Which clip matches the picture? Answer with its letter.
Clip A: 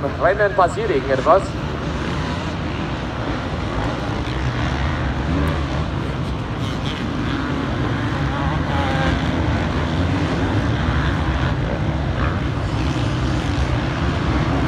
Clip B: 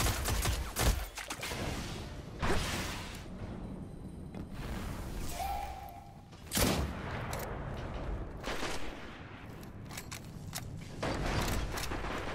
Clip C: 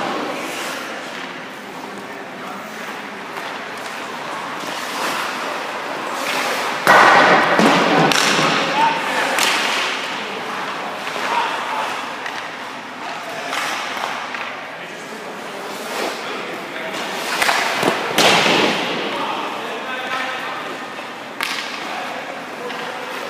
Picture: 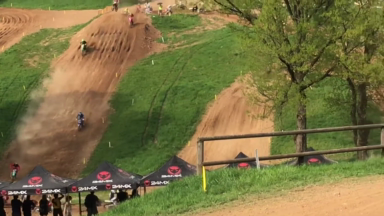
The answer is A